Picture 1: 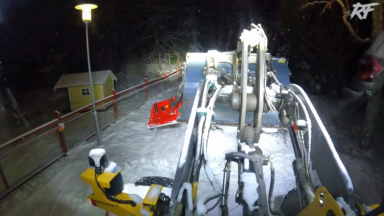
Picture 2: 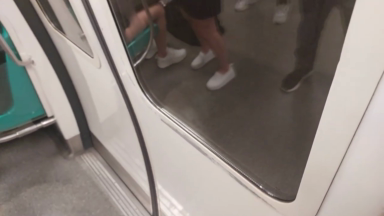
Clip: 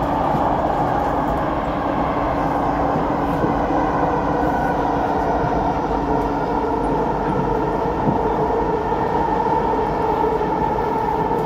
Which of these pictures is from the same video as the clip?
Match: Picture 2